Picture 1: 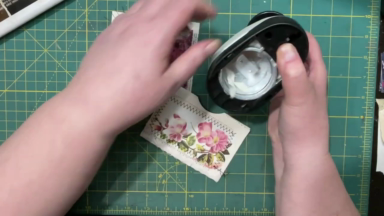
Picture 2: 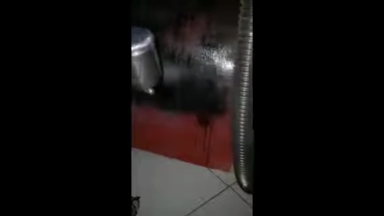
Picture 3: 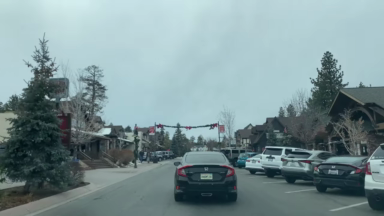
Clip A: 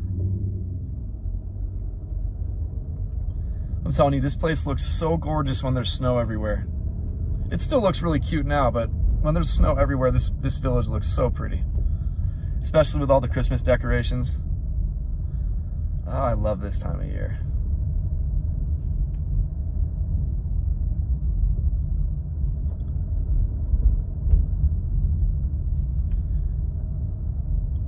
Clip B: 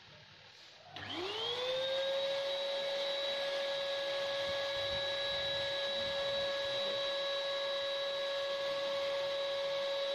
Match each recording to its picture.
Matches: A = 3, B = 2